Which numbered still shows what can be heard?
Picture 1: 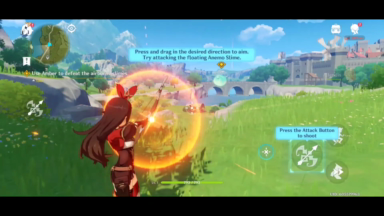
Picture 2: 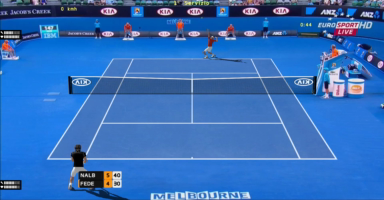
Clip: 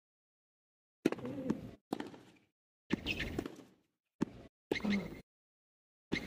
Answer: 2